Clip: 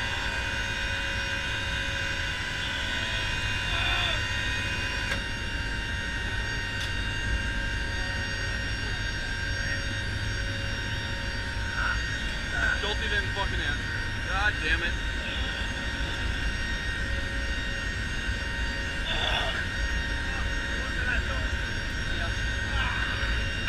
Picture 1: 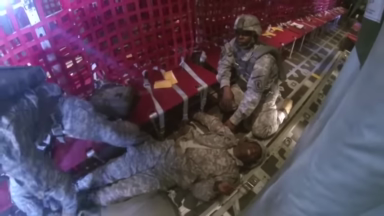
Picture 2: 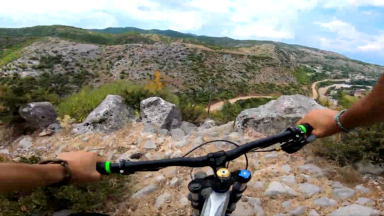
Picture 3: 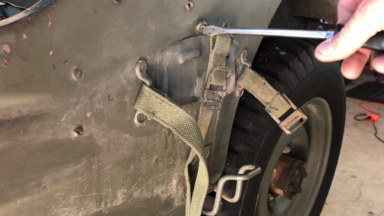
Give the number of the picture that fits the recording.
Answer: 1